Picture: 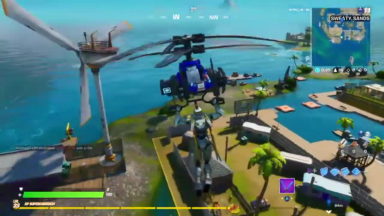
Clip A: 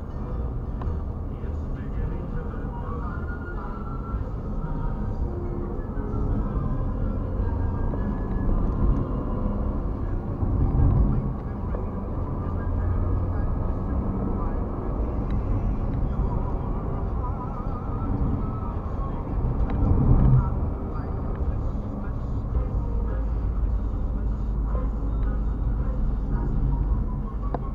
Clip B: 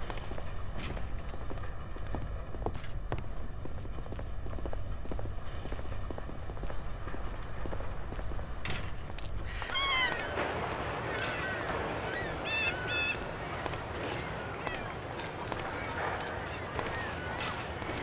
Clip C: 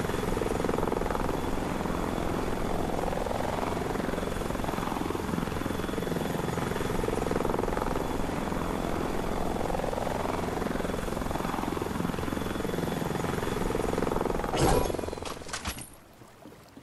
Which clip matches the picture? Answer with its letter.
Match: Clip C